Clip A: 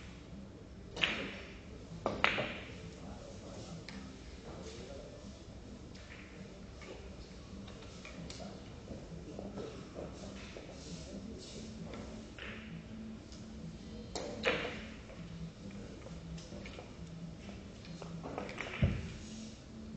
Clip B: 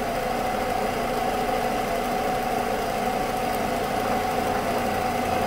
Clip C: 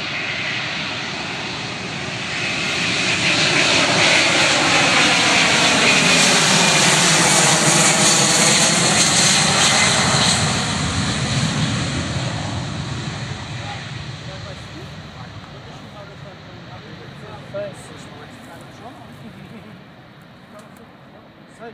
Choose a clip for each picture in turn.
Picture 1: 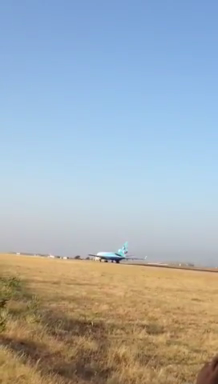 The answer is C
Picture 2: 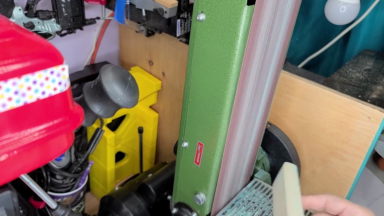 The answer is B